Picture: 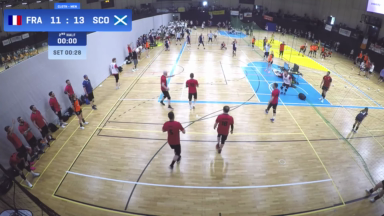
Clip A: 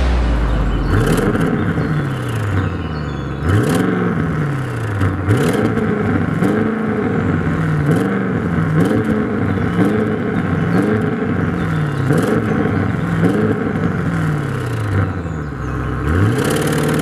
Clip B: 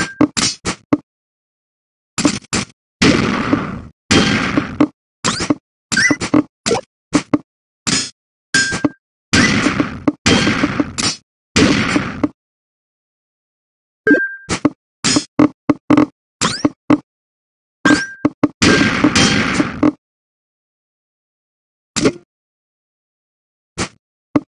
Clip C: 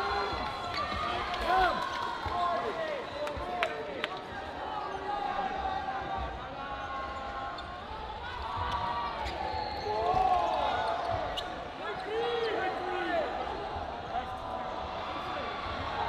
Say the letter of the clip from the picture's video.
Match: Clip C